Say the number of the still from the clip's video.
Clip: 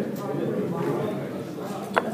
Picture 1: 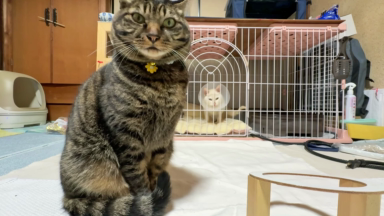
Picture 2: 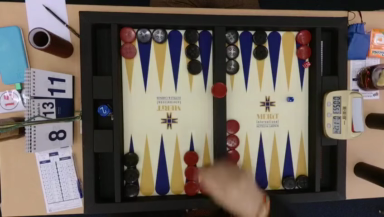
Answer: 2